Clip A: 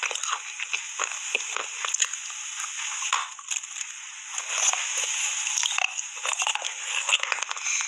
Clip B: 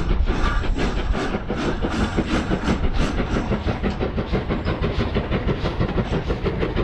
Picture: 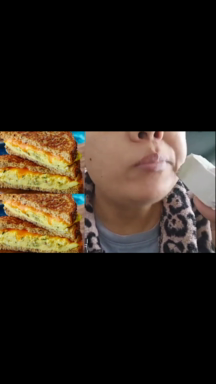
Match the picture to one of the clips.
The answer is A